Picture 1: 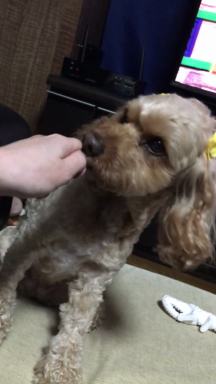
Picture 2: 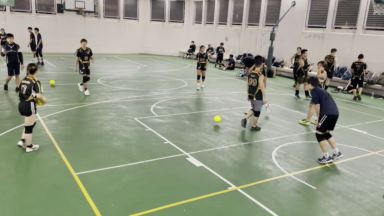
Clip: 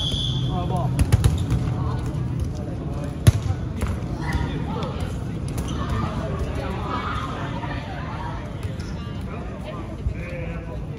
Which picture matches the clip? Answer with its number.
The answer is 2